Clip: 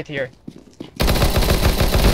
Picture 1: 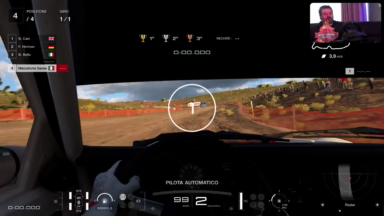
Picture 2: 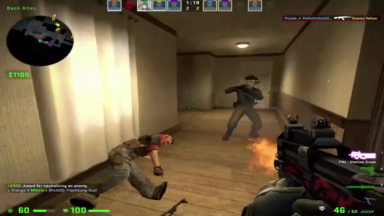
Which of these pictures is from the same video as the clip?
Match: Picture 2